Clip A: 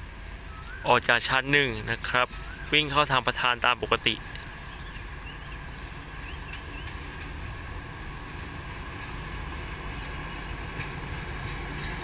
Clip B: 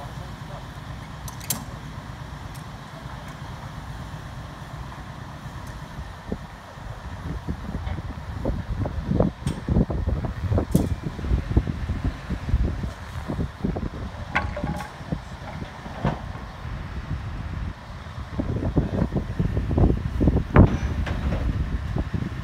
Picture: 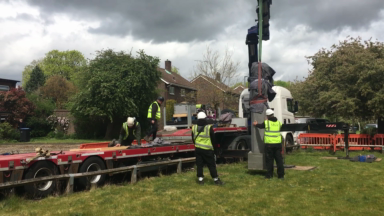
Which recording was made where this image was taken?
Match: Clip B